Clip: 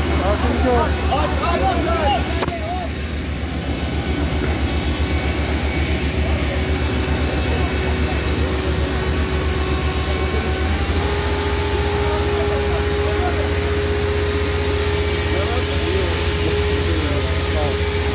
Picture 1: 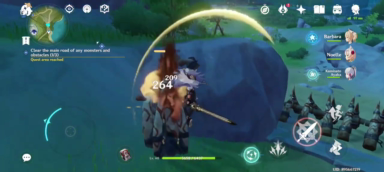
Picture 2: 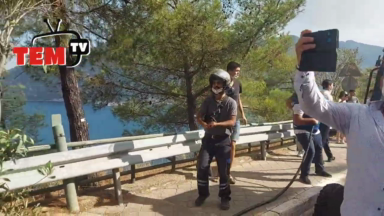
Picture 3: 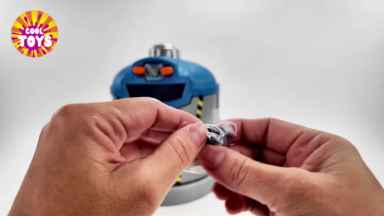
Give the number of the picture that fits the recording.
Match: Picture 2